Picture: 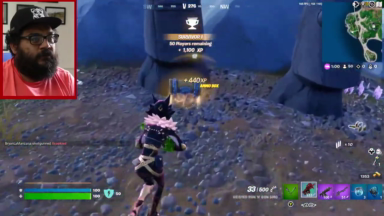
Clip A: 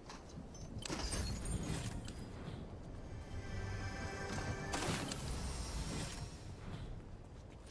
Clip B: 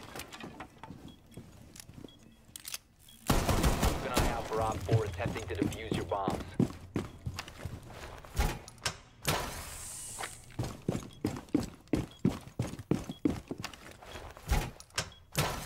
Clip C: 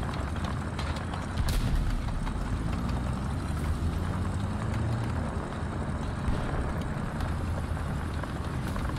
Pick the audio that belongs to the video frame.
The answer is A